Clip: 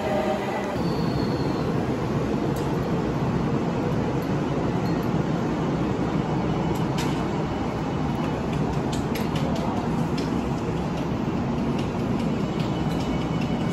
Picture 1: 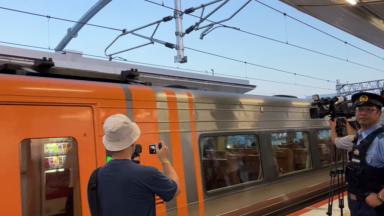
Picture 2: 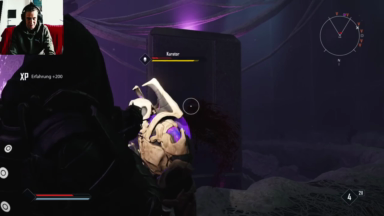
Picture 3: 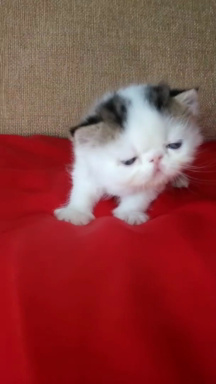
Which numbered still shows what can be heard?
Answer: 1